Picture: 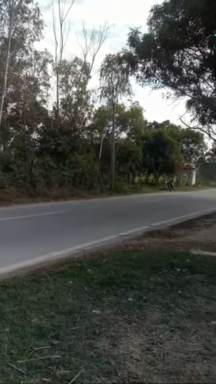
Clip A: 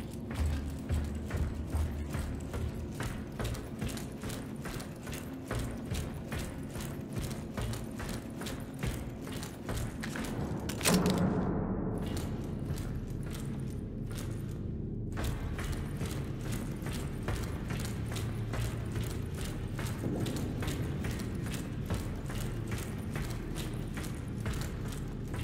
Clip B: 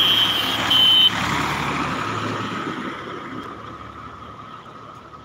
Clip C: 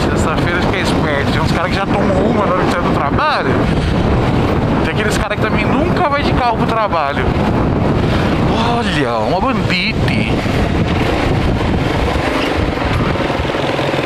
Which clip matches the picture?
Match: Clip B